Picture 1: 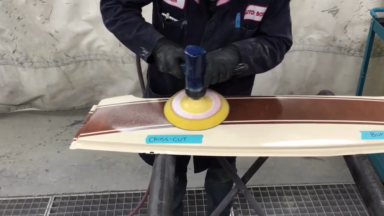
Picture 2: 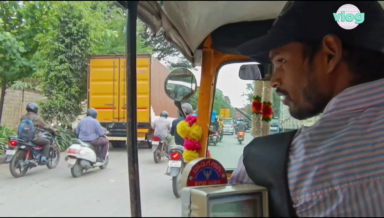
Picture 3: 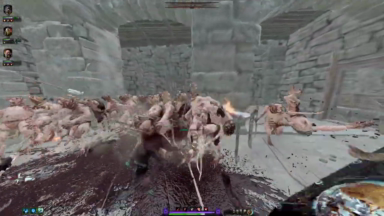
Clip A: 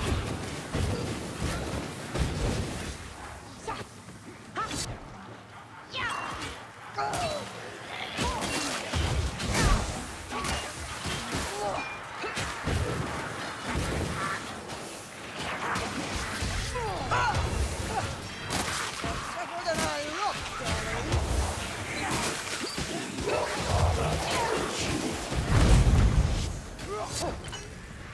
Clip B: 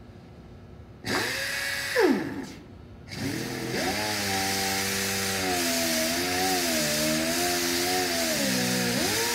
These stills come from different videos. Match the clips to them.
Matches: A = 3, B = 1